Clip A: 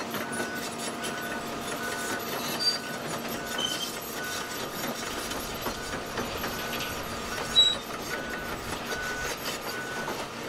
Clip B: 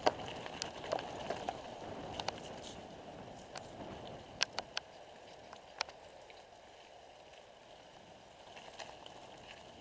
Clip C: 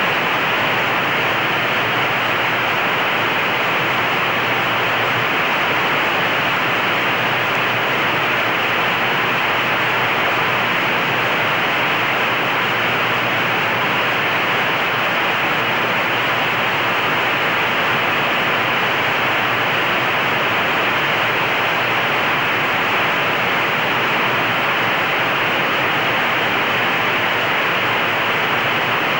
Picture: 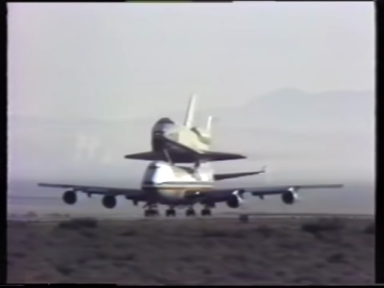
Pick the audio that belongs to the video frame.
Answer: C